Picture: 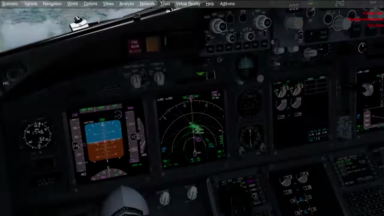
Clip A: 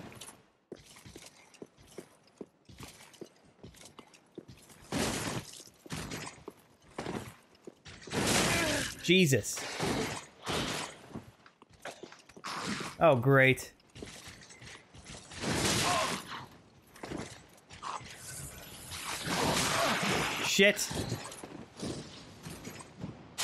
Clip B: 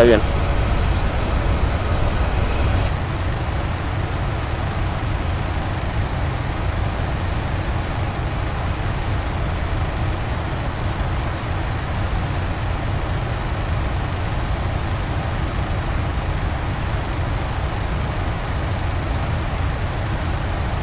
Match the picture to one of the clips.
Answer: B